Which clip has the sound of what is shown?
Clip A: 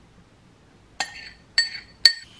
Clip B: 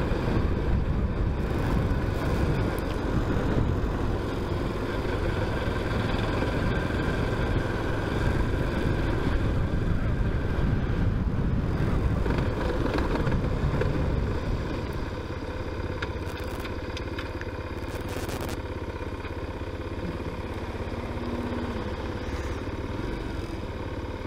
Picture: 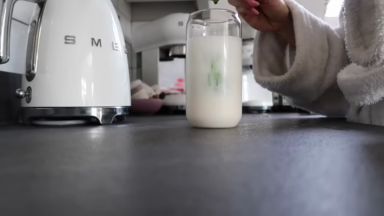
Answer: A